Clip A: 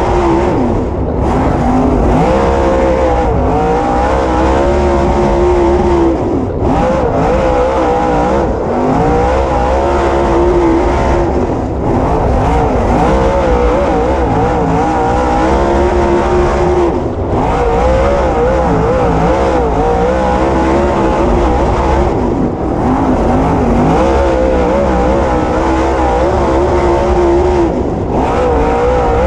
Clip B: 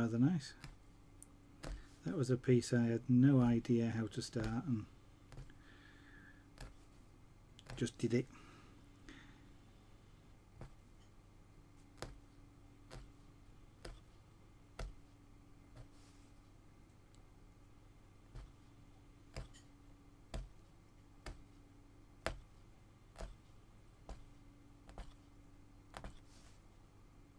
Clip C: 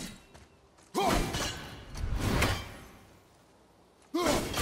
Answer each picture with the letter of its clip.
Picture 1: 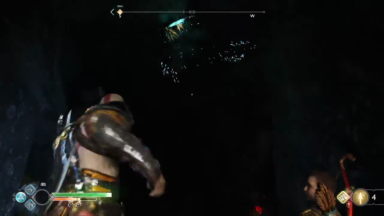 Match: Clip C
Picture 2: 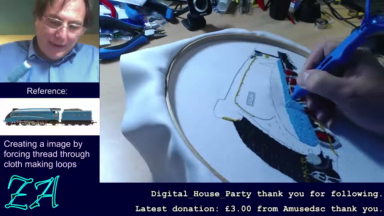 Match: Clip B